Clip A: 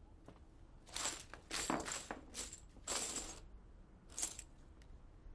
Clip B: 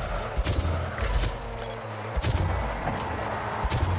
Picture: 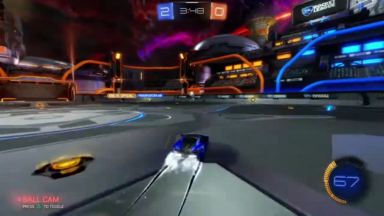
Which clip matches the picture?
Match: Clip B